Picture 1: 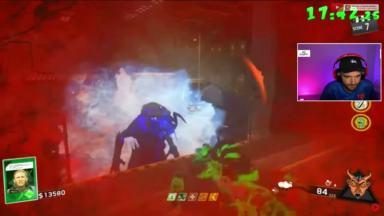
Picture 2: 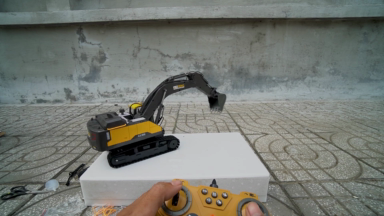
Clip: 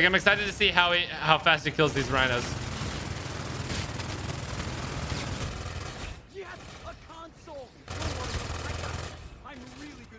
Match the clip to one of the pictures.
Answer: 1